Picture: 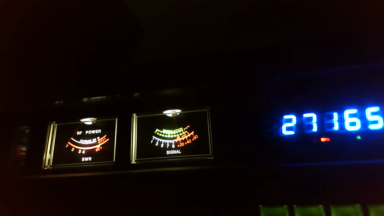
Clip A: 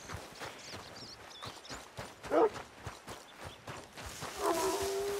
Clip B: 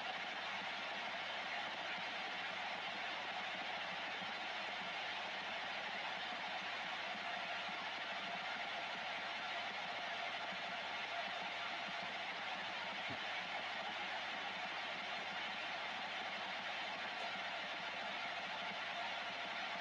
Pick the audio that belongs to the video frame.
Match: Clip B